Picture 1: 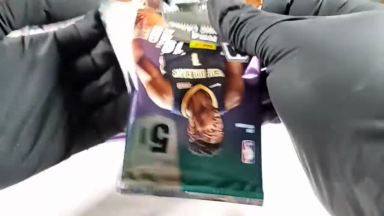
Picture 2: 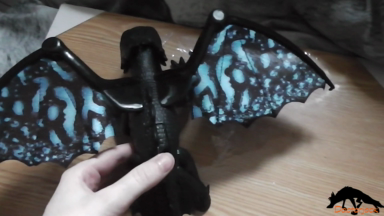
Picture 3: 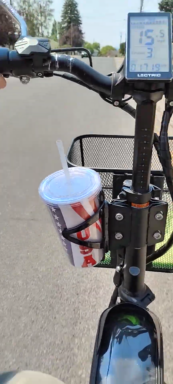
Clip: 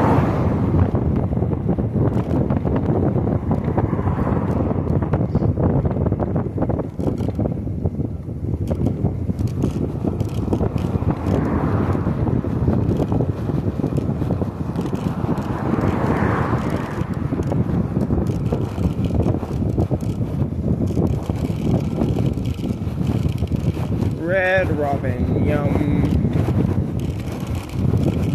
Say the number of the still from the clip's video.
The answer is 3